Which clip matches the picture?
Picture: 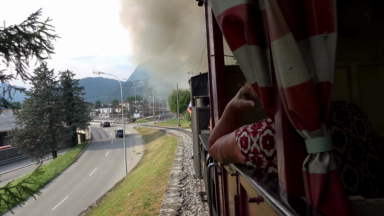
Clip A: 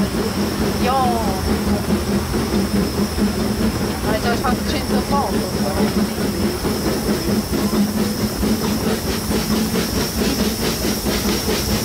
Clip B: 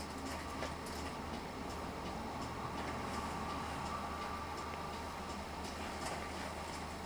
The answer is A